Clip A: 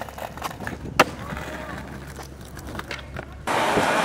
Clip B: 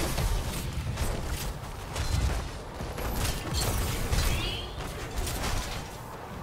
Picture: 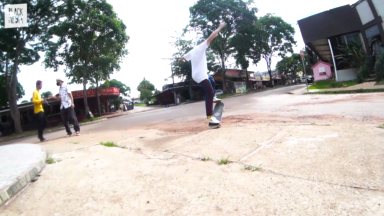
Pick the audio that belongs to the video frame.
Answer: A